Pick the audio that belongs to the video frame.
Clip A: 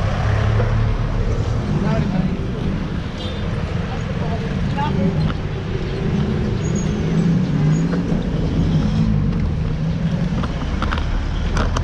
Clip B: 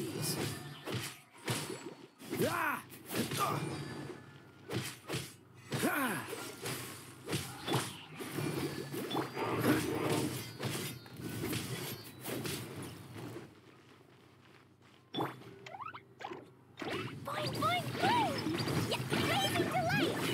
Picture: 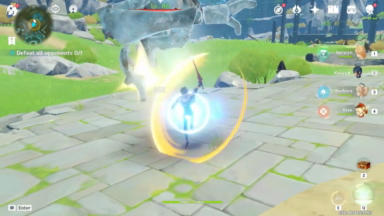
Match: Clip B